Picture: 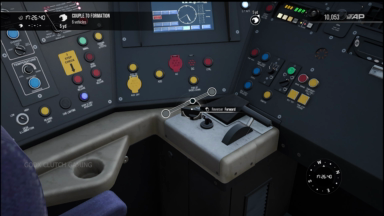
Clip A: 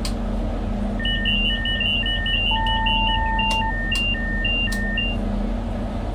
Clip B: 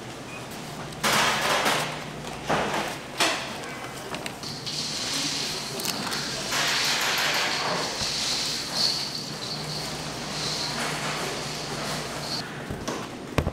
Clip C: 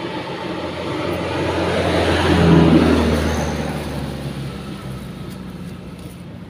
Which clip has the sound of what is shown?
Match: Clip A